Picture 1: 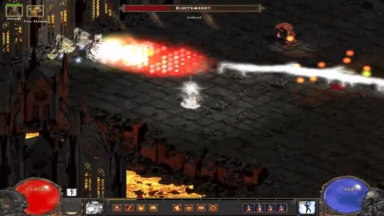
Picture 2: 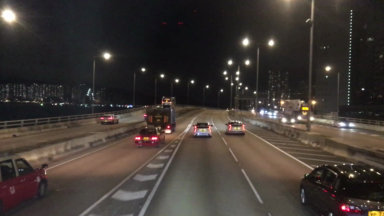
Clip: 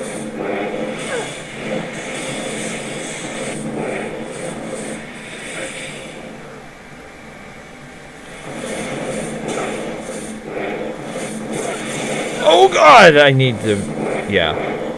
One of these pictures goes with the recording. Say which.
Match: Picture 1